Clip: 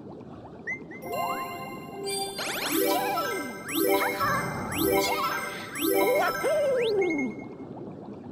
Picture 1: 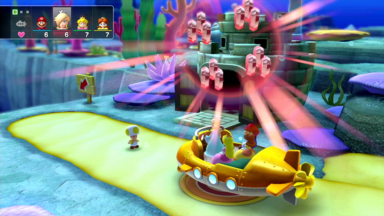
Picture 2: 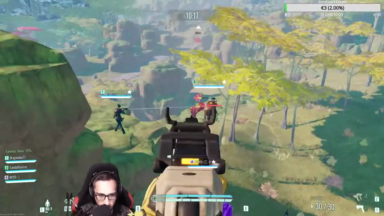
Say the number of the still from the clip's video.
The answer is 1